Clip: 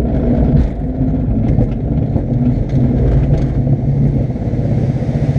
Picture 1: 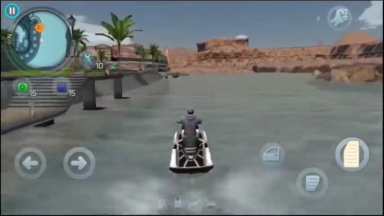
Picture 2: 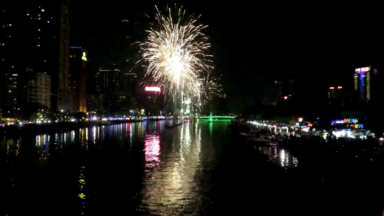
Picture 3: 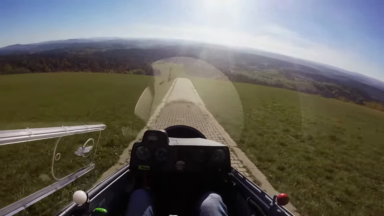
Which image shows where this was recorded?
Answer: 3